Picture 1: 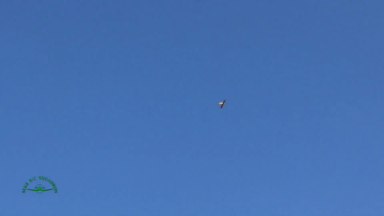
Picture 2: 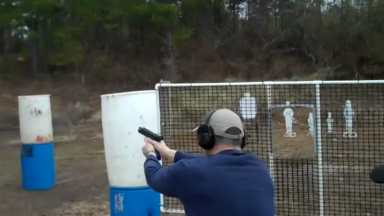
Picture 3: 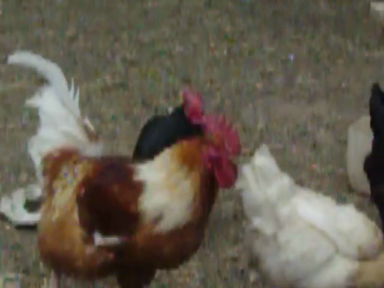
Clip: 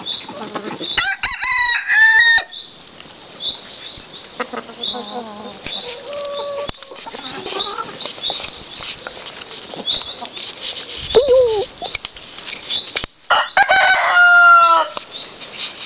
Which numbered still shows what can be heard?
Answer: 3